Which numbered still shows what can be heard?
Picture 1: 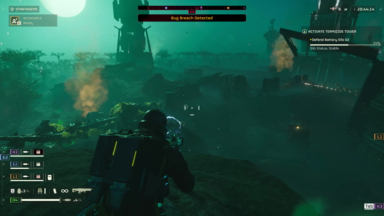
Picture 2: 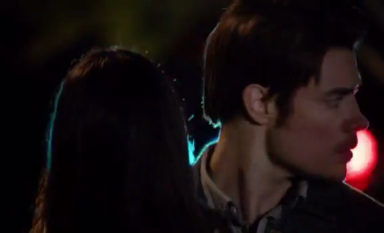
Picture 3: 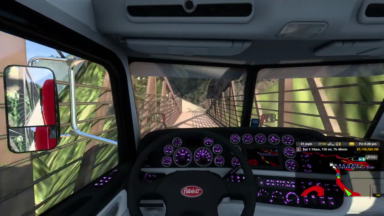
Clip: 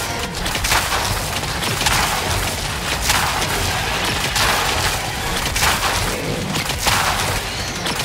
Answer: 1